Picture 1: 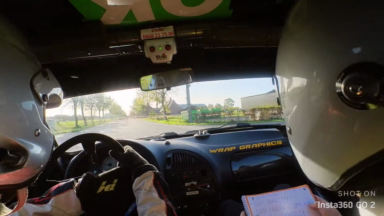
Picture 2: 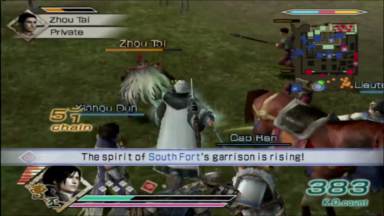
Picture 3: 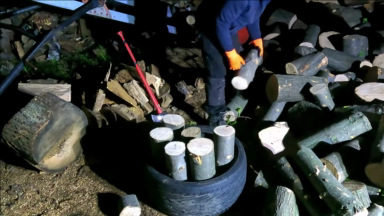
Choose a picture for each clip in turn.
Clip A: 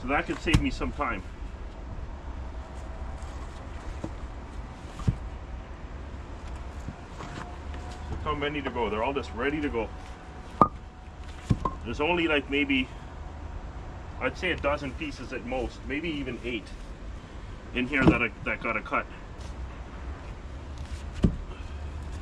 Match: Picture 3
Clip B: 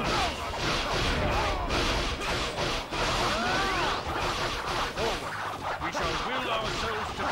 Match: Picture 2